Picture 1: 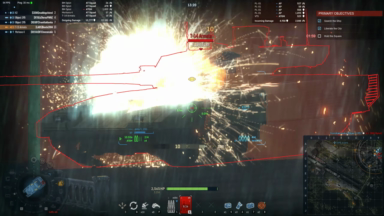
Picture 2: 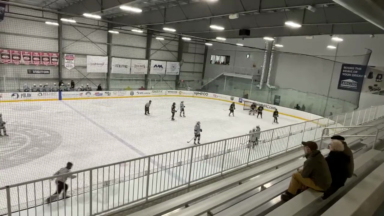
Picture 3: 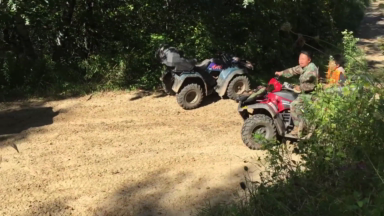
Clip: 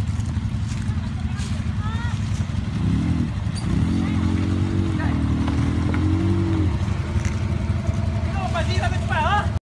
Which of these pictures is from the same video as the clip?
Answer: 3